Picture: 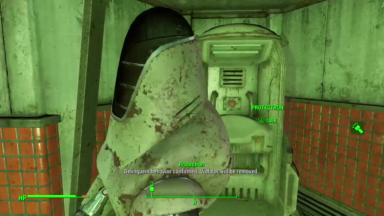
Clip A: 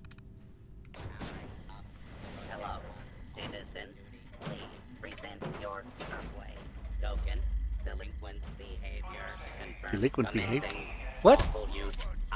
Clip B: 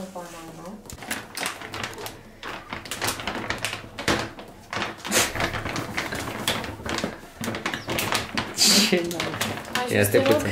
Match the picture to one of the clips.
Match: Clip A